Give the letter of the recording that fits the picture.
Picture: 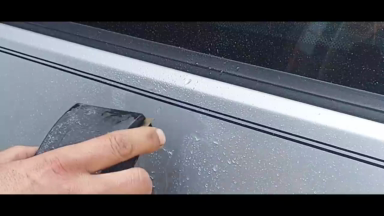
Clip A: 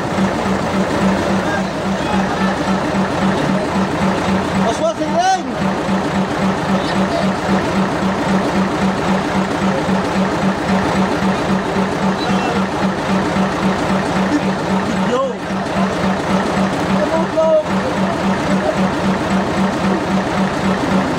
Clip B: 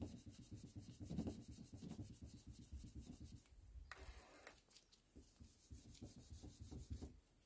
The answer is B